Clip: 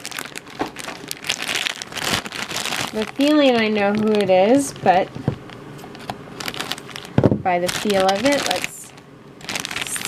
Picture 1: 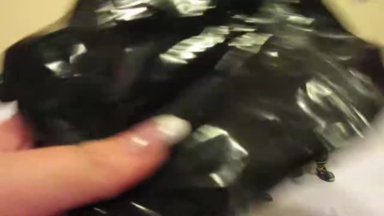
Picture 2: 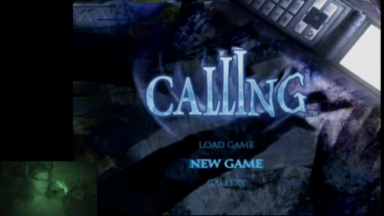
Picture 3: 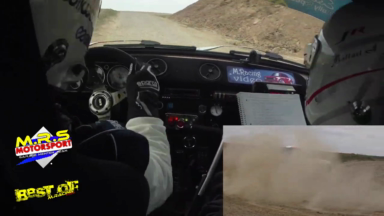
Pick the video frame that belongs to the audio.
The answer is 1